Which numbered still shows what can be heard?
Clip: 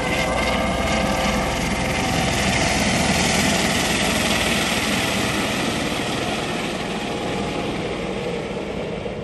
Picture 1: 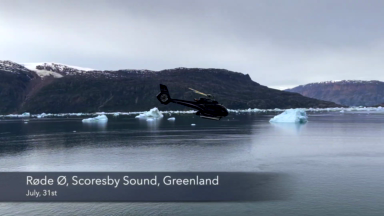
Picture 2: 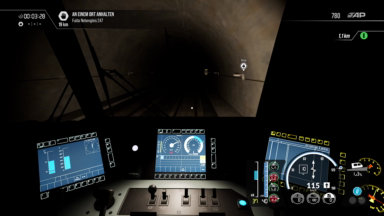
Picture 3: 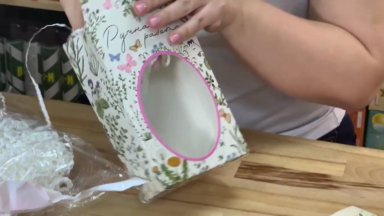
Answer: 1